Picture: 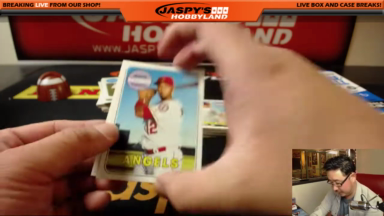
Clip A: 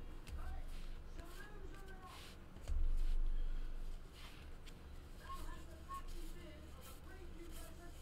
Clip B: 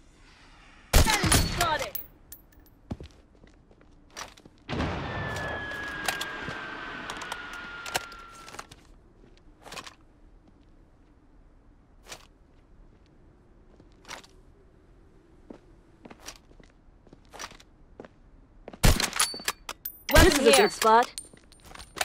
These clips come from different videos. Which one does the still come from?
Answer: A